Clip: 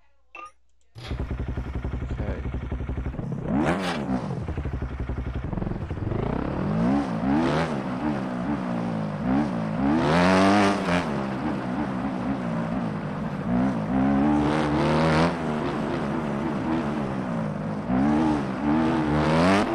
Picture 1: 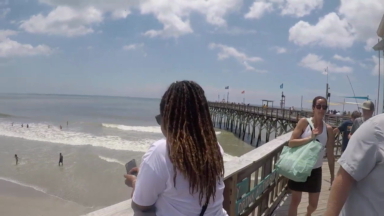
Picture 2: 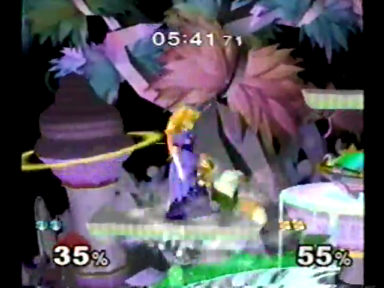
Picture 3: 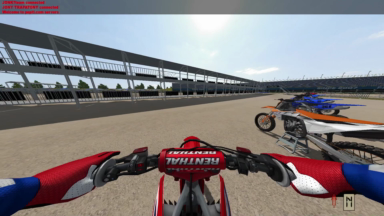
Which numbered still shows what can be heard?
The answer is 3